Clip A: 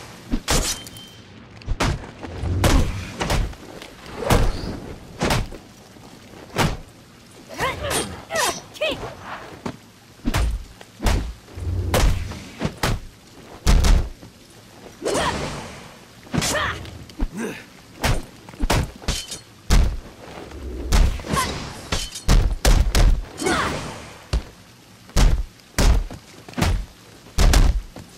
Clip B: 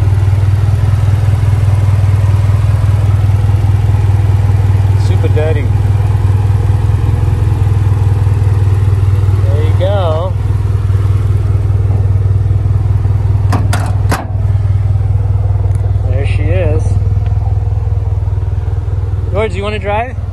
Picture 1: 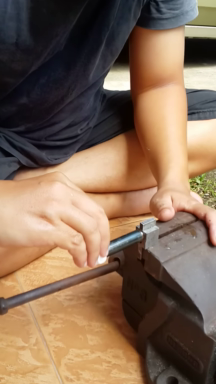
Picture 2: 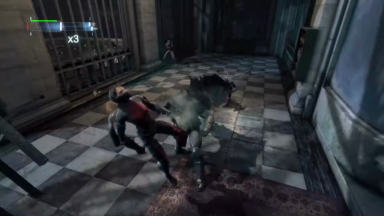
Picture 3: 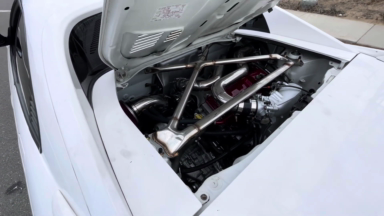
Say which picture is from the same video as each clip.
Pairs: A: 2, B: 3